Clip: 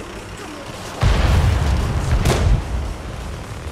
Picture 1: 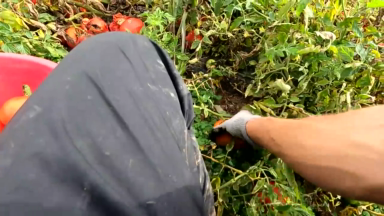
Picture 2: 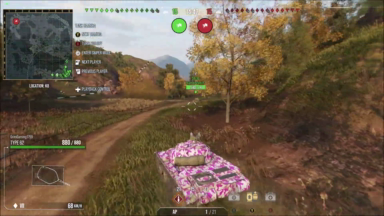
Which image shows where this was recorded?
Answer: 2